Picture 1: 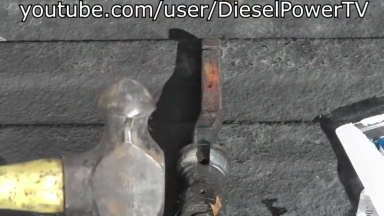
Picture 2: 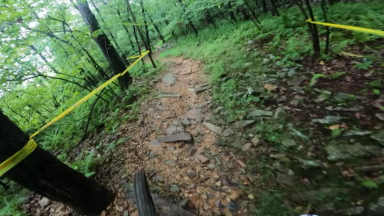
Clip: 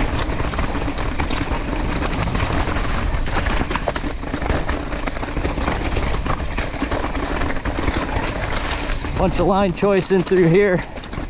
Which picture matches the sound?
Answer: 2